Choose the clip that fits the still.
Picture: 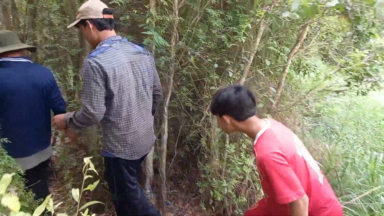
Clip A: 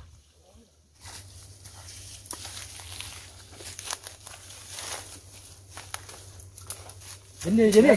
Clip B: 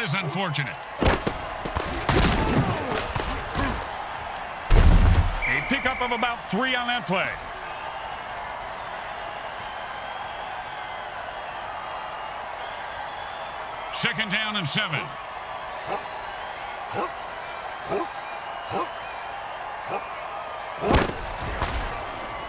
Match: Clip A